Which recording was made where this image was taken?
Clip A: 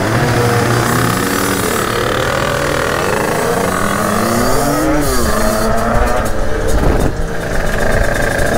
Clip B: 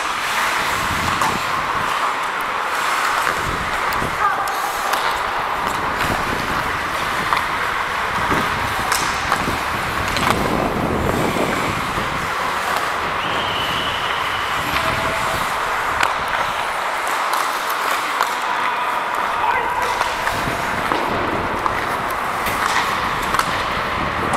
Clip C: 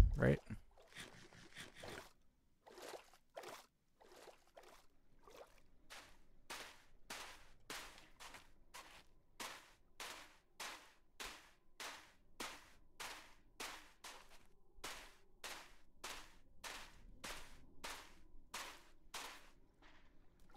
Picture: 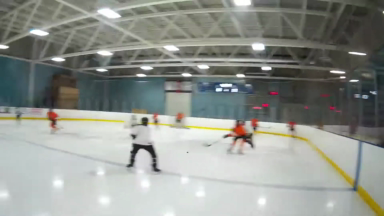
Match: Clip B